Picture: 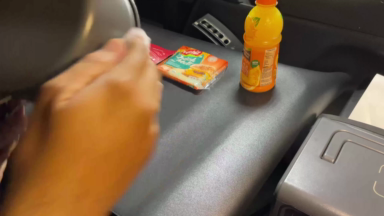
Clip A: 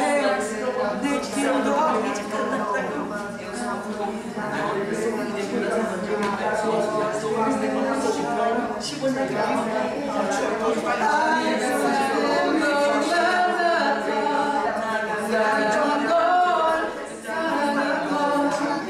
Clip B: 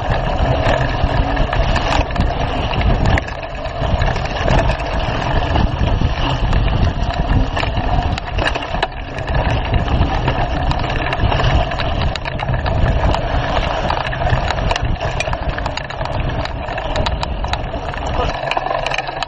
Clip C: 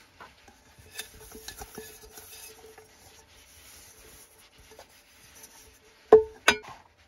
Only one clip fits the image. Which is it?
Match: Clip C